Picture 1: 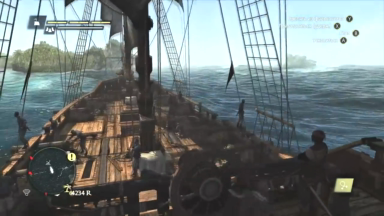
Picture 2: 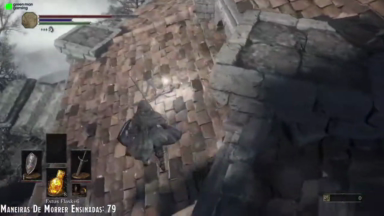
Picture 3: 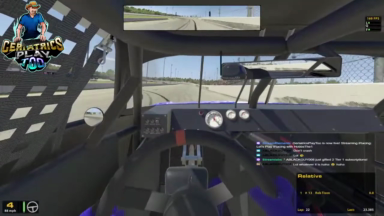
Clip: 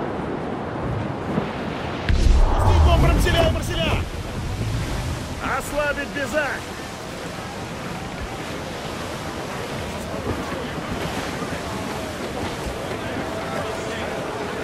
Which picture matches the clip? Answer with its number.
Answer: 1